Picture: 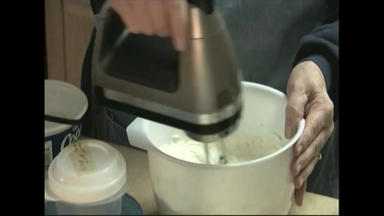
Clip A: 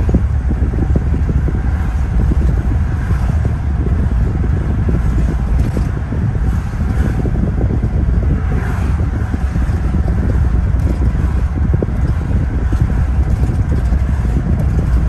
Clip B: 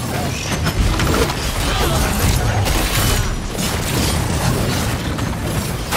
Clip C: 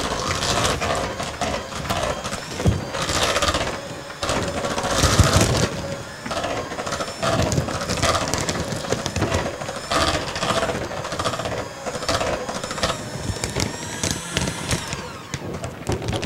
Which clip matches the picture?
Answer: C